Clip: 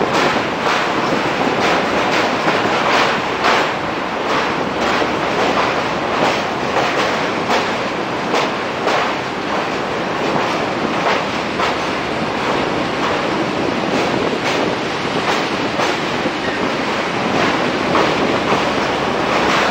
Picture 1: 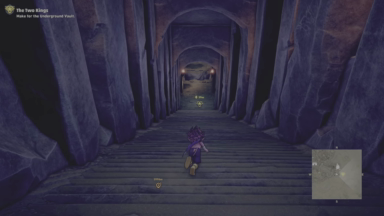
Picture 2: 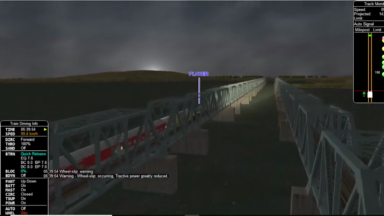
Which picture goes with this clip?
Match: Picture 2